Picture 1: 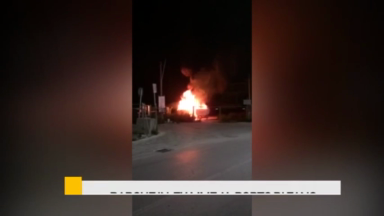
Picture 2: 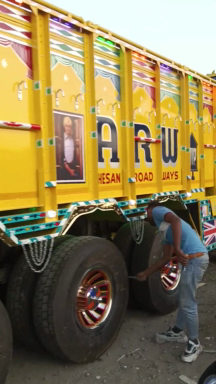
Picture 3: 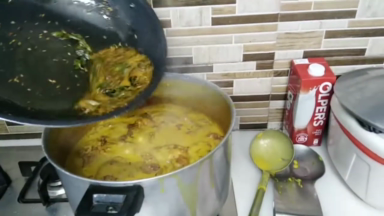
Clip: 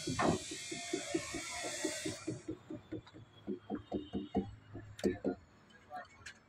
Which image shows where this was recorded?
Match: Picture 2